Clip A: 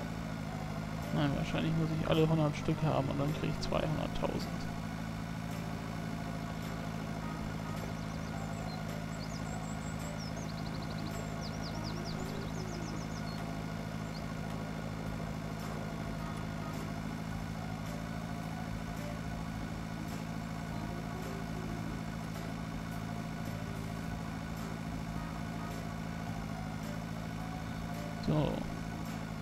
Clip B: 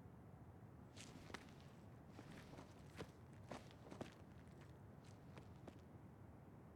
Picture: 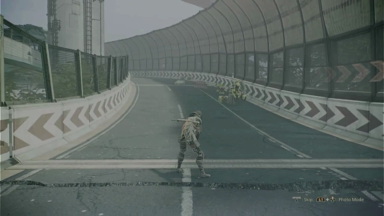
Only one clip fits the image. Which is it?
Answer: B